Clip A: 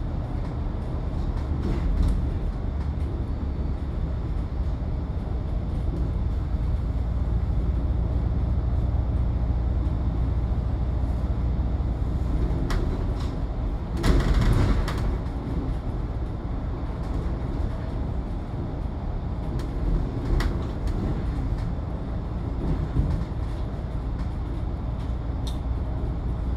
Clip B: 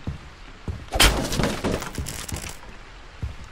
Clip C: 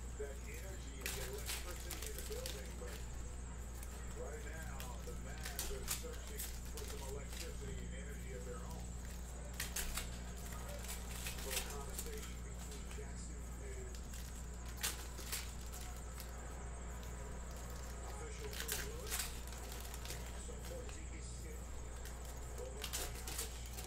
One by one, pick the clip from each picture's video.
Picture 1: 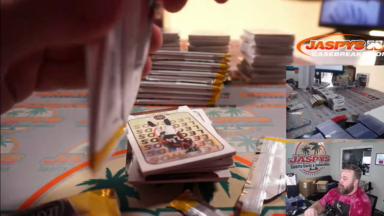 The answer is C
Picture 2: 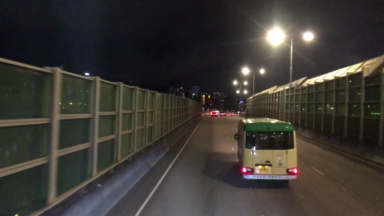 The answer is A